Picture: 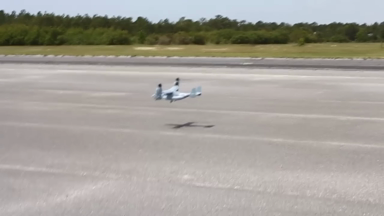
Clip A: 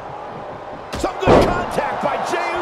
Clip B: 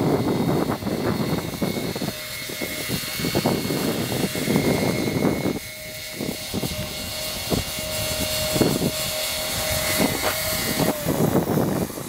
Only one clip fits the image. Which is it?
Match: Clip B